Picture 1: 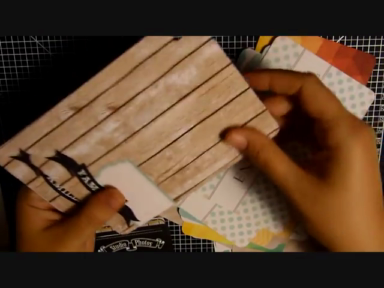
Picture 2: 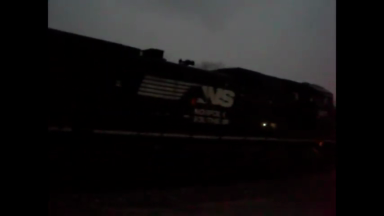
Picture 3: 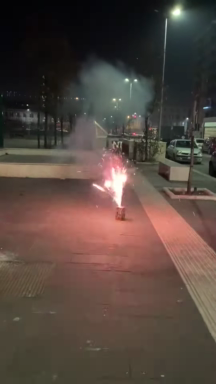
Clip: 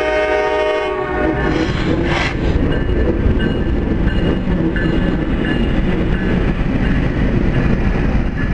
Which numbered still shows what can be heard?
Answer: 2